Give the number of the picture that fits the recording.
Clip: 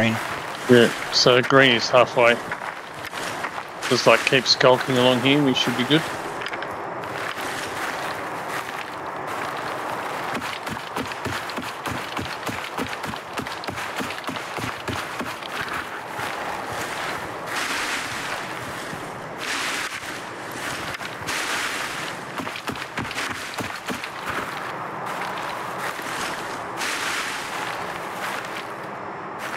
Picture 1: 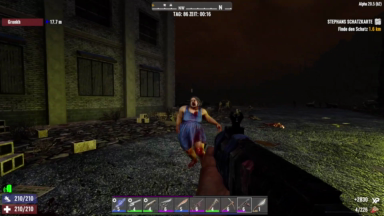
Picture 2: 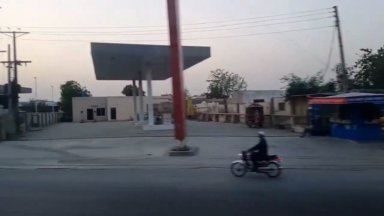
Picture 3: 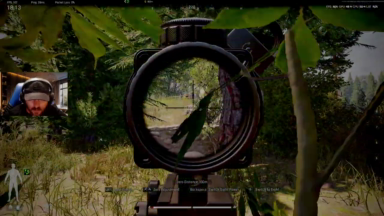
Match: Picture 3